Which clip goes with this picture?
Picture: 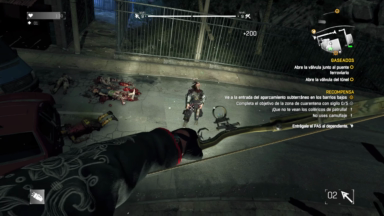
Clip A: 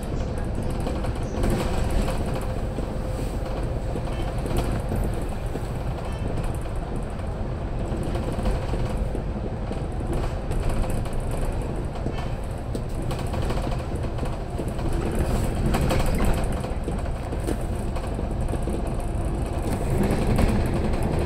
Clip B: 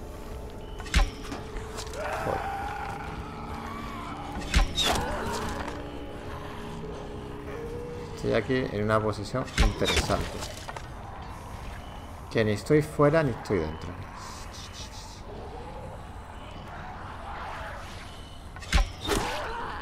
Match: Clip B